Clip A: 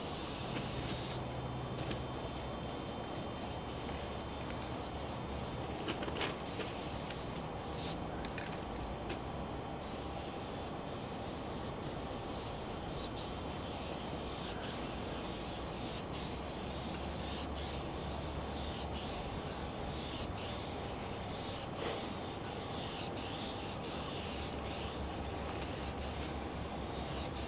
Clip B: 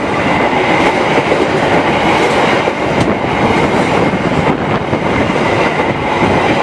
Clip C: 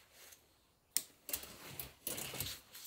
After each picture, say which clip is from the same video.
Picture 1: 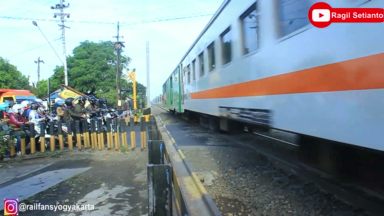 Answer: B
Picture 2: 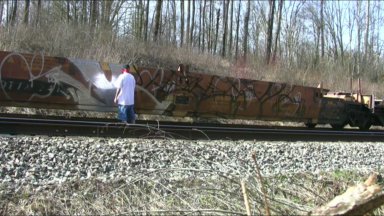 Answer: A